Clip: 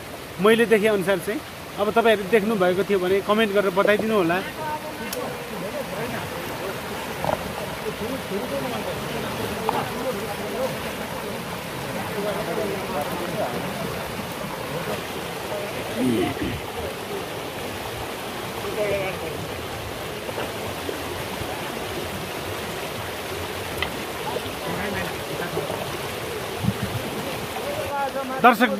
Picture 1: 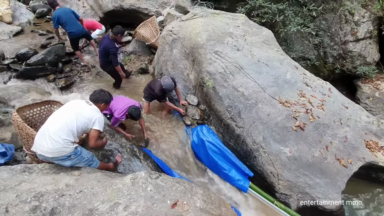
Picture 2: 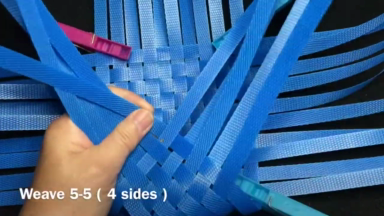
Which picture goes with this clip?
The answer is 1